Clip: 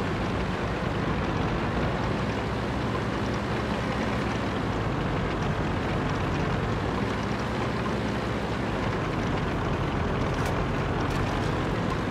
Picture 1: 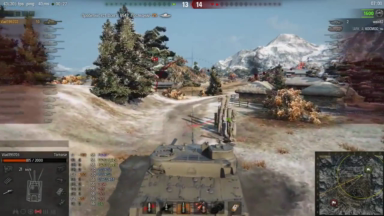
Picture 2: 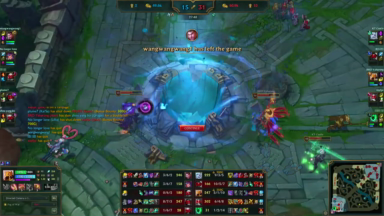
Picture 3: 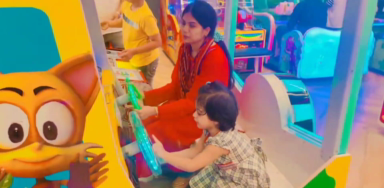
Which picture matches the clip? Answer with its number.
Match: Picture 1